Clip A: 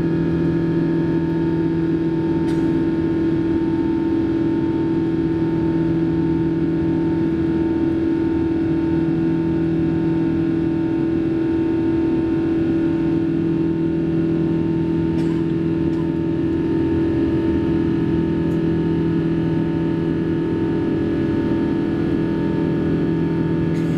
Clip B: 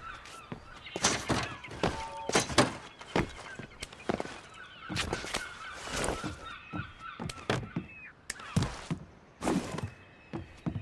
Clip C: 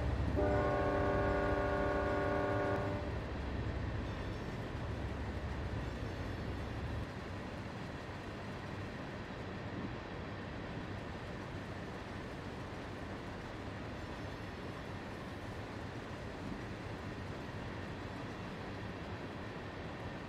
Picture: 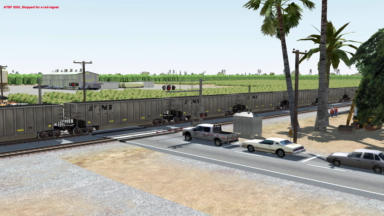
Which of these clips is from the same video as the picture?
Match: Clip C